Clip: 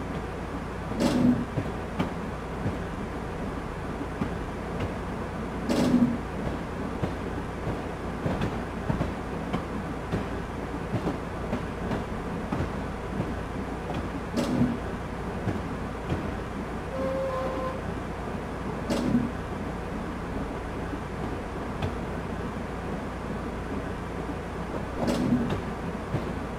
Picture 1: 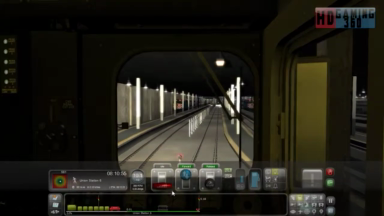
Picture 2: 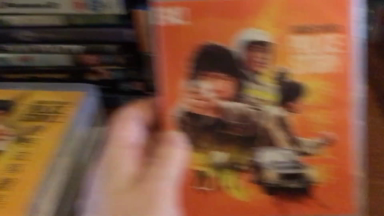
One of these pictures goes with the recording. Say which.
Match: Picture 1